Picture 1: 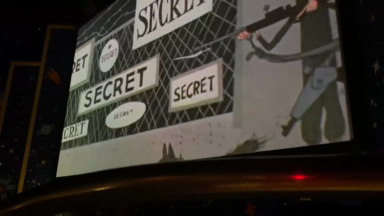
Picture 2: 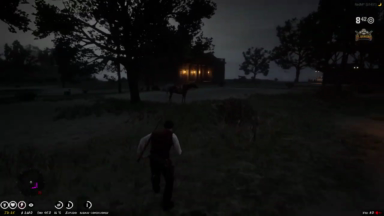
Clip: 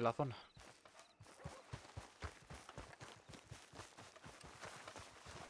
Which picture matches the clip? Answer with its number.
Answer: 2